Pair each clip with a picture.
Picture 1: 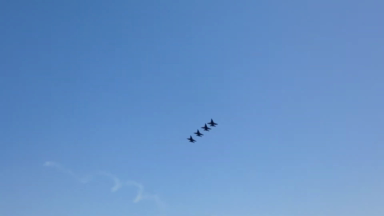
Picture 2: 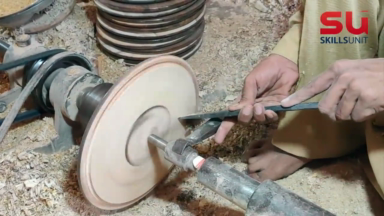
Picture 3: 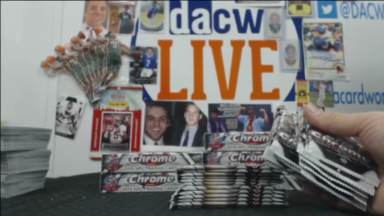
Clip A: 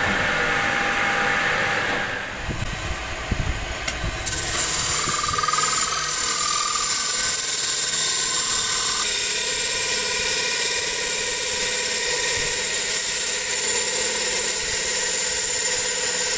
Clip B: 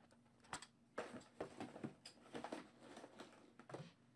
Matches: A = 2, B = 3